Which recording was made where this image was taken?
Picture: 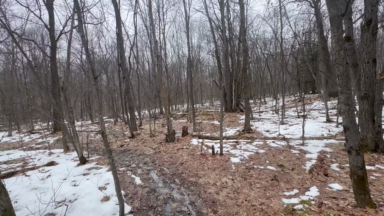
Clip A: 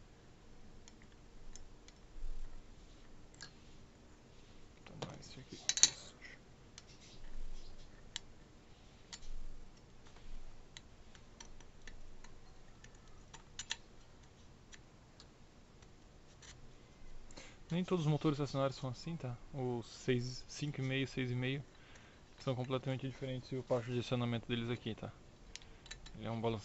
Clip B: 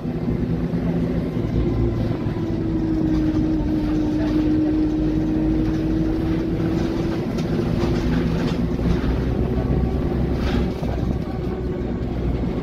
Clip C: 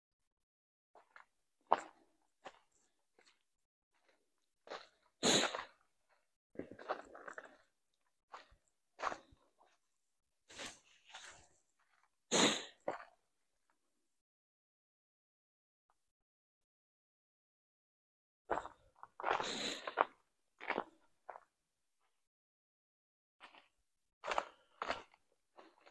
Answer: C